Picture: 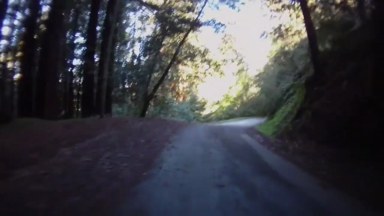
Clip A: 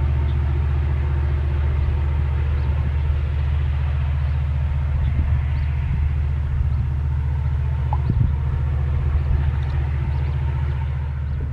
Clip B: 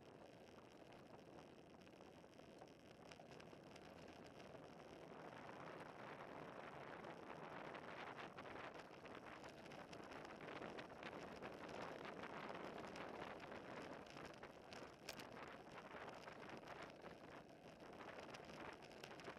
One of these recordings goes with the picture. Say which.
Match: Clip B